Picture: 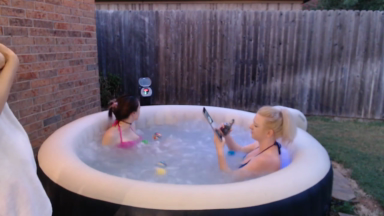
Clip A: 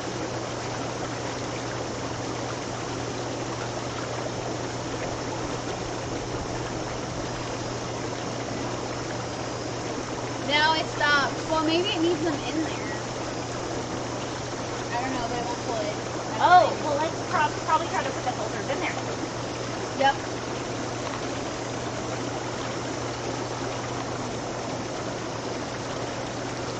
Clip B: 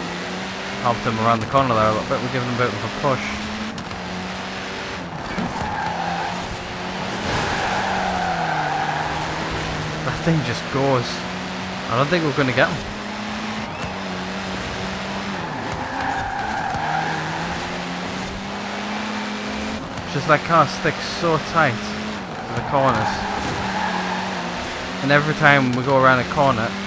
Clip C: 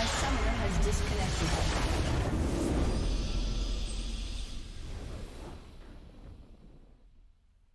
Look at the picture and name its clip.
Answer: A